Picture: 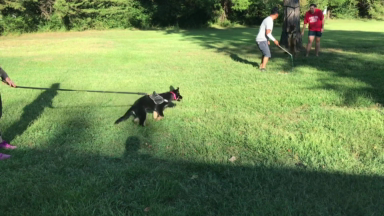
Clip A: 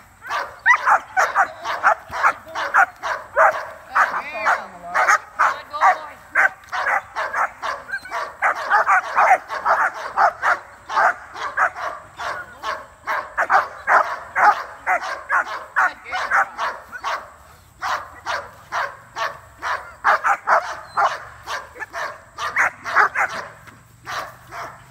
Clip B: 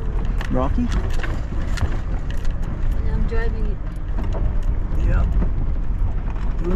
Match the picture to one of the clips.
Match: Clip A